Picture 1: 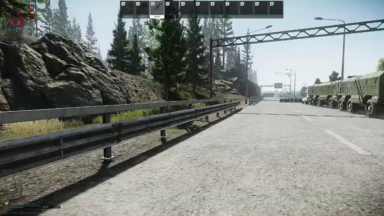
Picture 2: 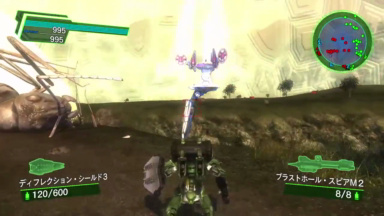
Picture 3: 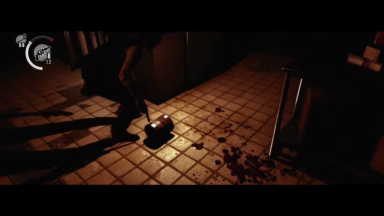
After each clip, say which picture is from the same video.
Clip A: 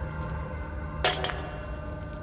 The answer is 3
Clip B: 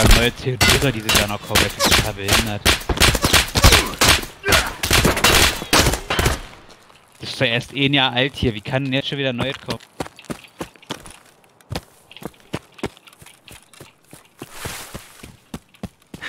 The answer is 1